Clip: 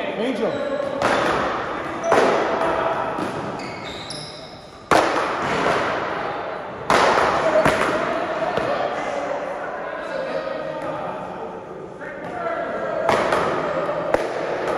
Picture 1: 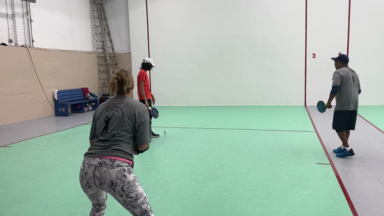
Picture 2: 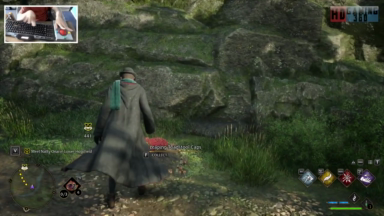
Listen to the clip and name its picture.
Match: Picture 1